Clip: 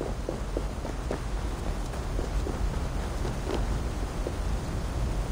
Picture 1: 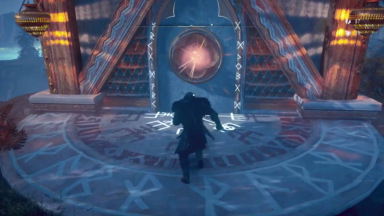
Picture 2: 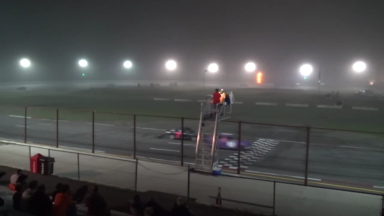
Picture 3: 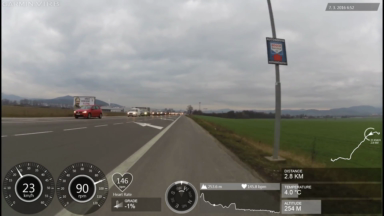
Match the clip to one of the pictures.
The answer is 1